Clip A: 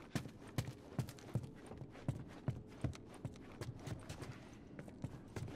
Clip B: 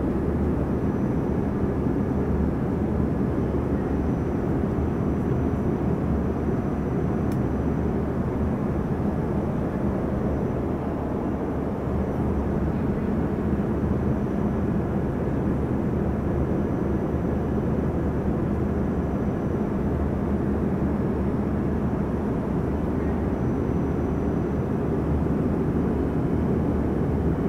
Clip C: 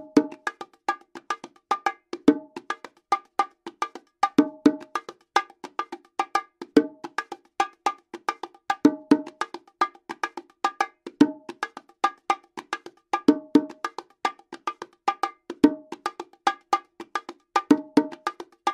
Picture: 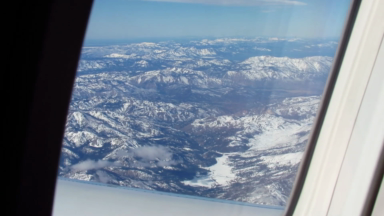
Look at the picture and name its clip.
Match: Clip B